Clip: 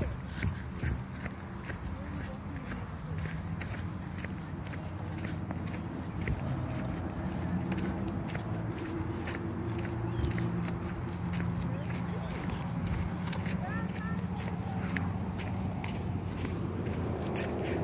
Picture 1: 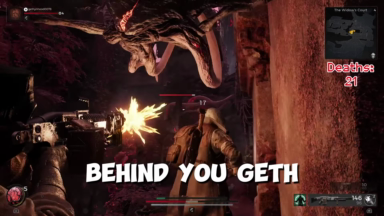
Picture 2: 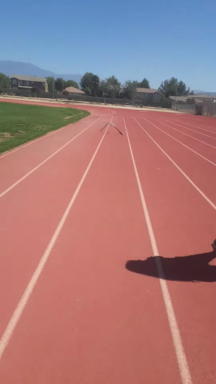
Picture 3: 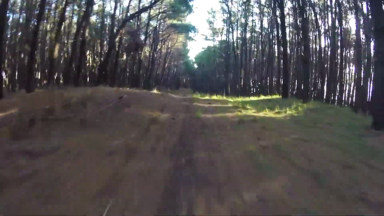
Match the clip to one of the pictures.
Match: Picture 2